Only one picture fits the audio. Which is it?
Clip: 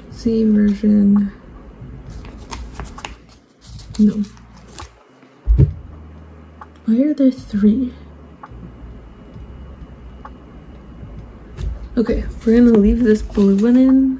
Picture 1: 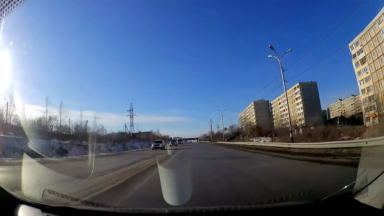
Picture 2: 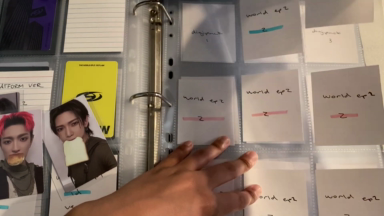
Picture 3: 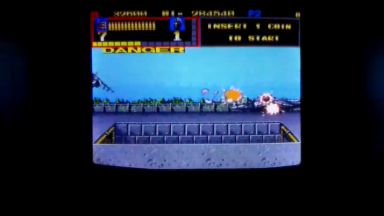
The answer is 2